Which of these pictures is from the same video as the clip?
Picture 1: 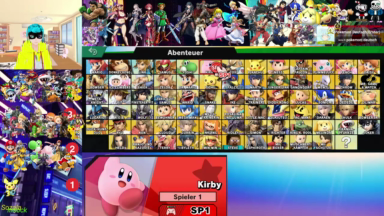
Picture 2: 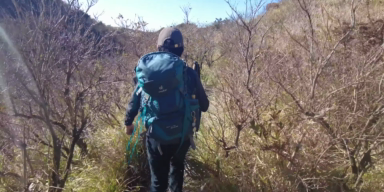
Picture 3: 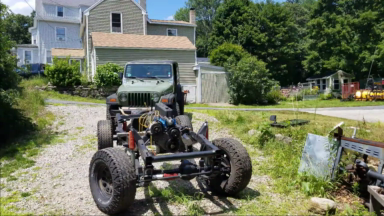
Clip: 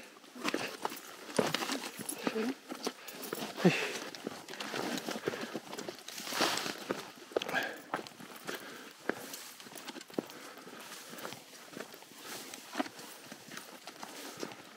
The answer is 2